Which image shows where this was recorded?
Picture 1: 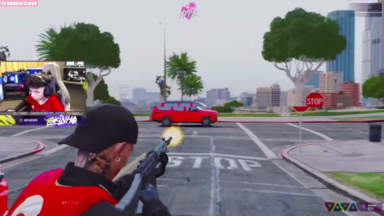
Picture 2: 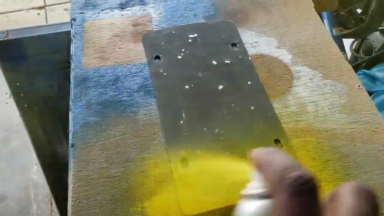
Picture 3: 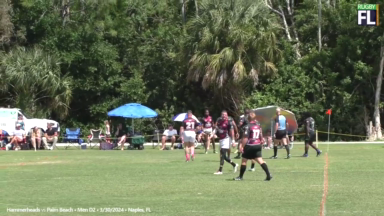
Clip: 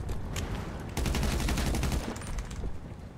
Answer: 1